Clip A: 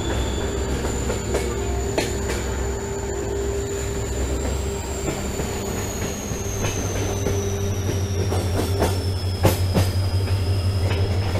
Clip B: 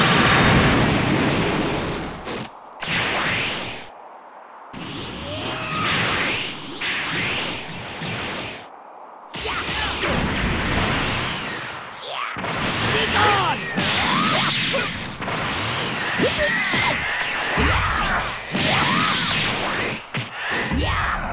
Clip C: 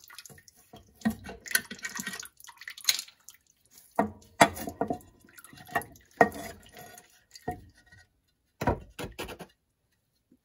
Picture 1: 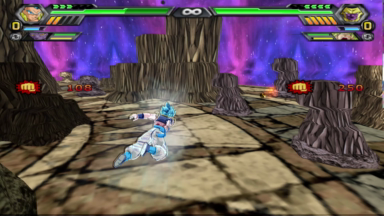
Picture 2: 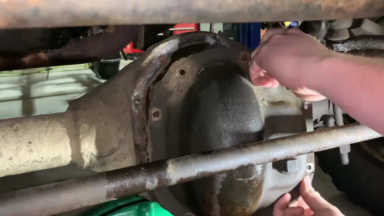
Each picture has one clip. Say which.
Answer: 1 B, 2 C